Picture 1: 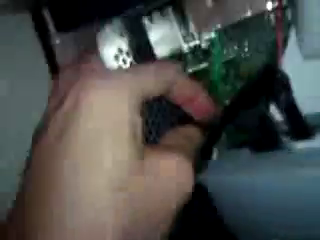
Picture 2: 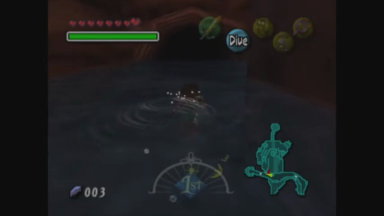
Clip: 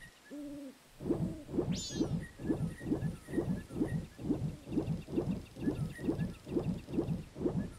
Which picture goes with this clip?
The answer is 2